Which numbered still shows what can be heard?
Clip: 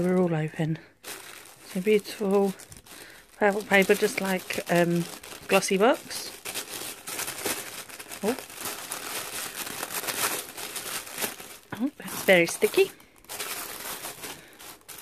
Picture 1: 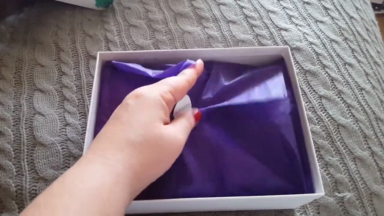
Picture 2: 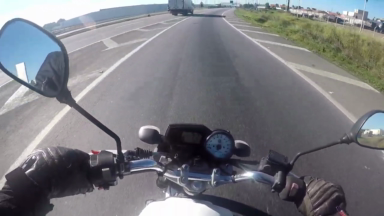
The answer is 1